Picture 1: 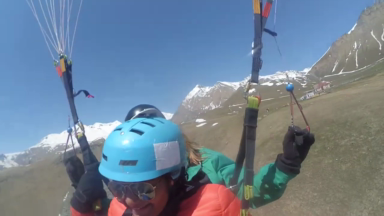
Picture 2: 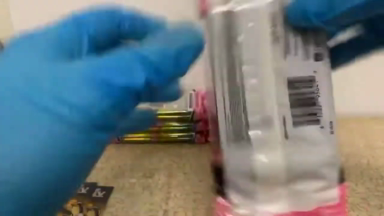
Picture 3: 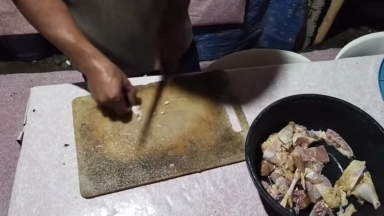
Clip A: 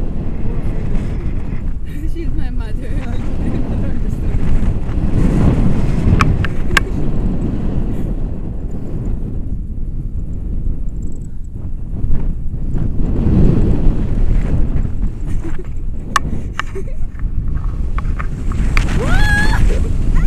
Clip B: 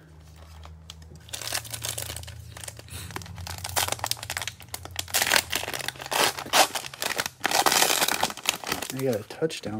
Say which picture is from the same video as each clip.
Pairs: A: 1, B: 2